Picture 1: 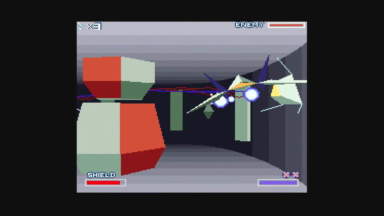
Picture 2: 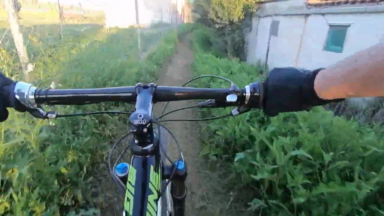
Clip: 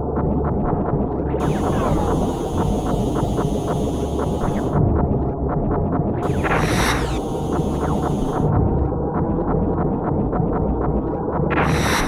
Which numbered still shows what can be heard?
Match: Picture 1